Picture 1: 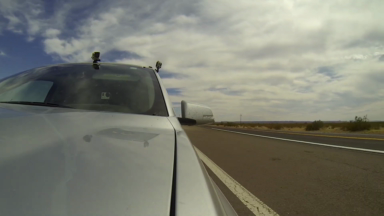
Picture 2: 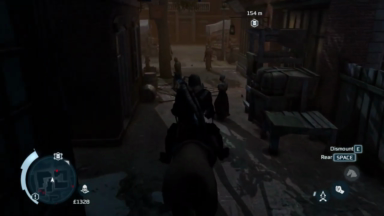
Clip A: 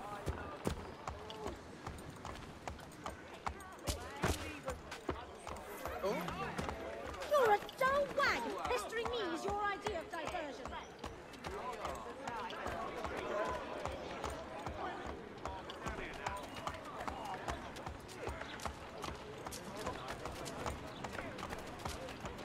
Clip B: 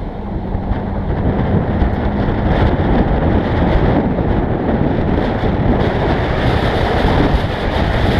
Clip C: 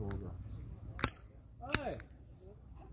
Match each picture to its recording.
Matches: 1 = B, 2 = A